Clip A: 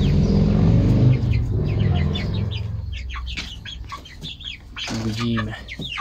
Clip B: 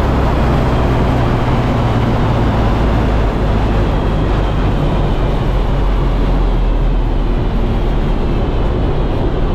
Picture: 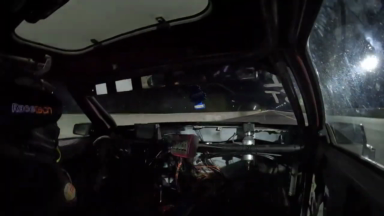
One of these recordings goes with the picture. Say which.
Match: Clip B